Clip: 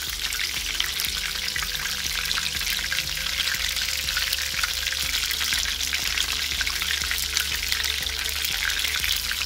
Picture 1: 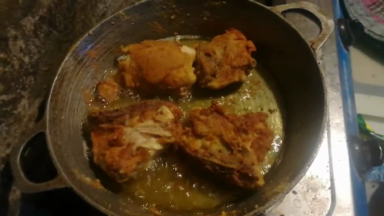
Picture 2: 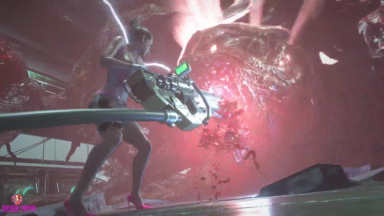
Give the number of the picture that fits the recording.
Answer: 1